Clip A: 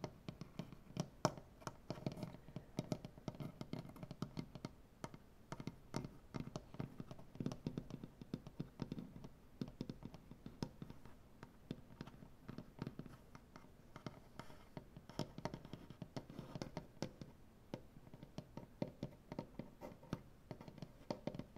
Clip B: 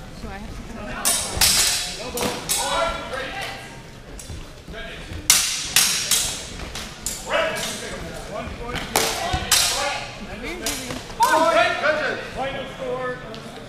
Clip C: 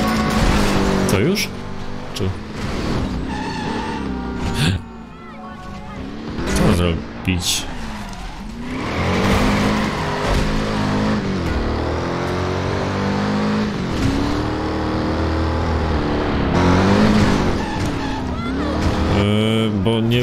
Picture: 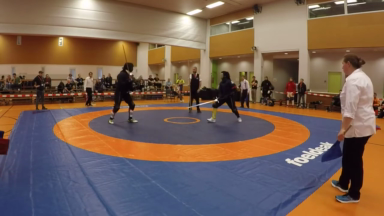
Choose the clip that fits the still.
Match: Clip B